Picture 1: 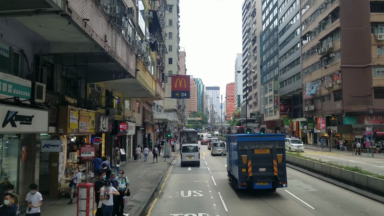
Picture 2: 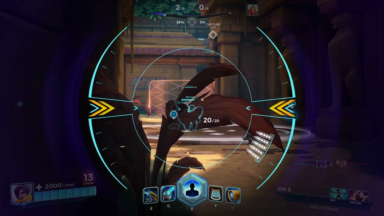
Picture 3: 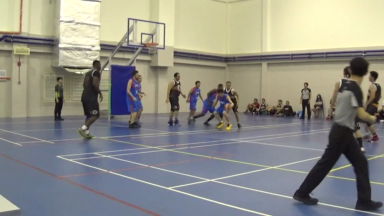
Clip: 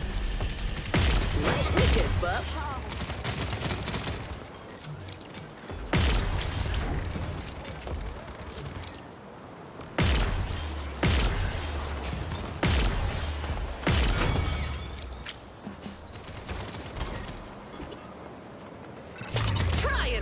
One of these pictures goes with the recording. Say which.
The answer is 2